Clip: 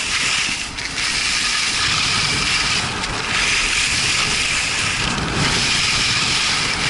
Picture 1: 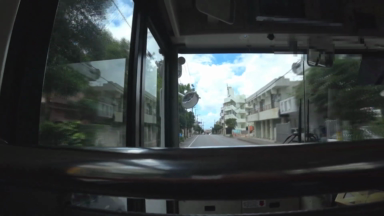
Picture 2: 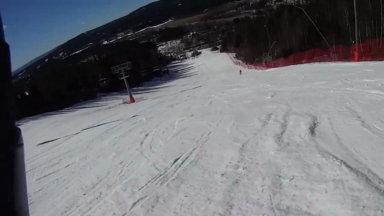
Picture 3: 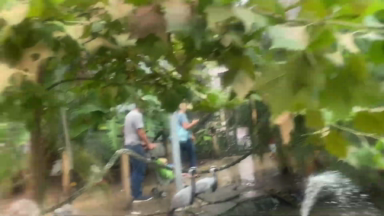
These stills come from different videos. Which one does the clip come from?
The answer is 2